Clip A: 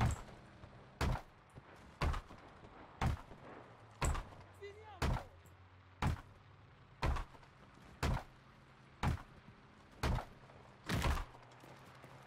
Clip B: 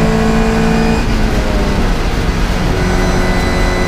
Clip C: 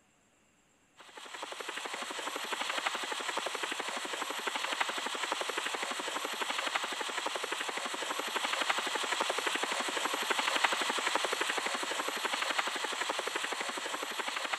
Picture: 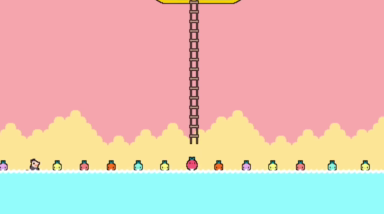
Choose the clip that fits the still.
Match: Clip C